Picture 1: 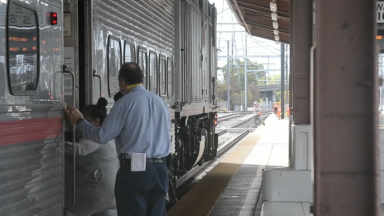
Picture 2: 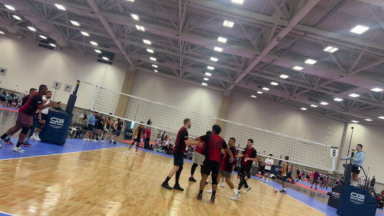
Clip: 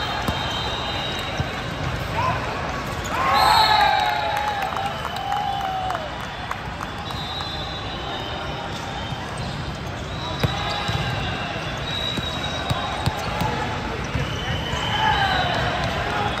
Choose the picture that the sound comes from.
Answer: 2